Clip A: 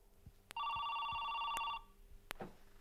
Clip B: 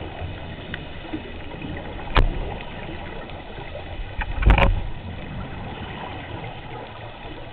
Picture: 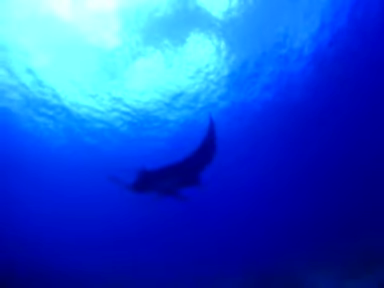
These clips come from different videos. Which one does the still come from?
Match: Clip B